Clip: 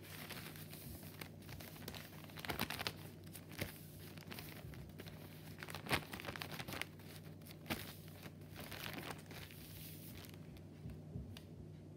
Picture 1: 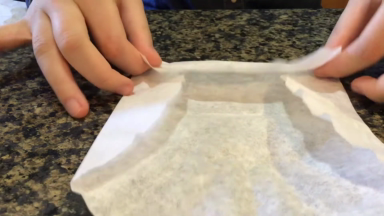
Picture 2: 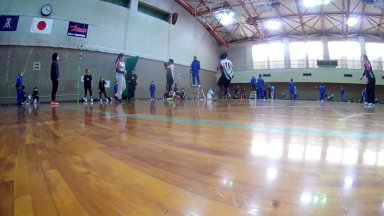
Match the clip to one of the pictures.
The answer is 1